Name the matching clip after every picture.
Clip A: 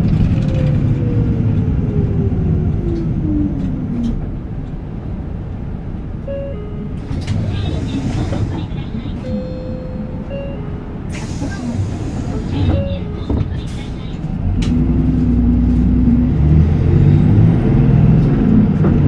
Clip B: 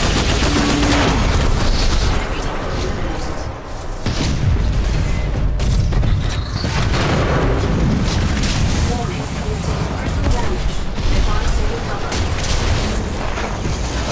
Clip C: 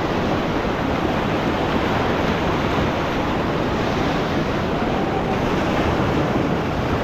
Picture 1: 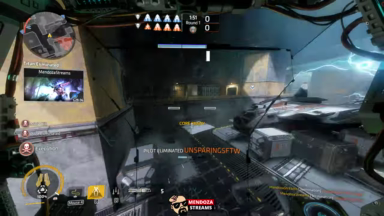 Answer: B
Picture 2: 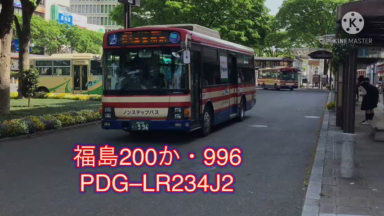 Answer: A